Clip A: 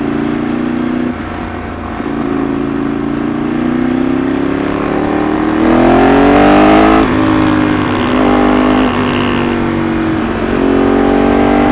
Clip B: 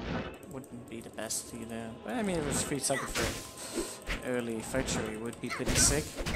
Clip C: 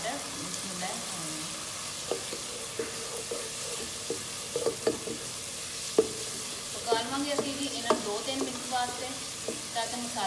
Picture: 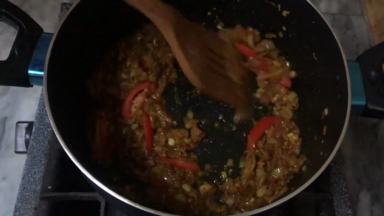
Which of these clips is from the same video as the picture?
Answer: C